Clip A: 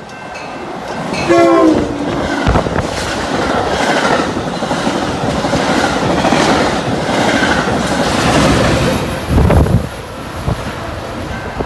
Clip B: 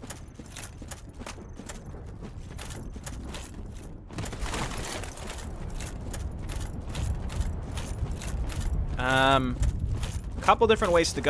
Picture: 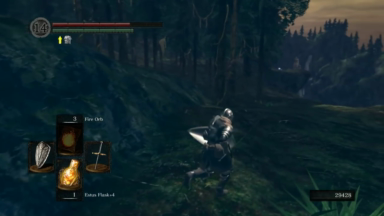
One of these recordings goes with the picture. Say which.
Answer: B